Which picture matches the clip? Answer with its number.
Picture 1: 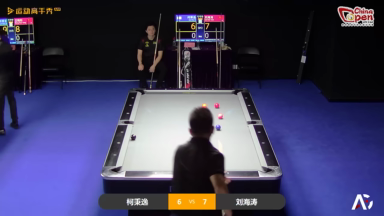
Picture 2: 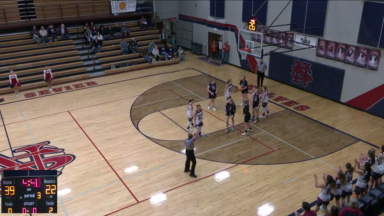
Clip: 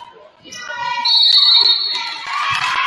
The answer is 2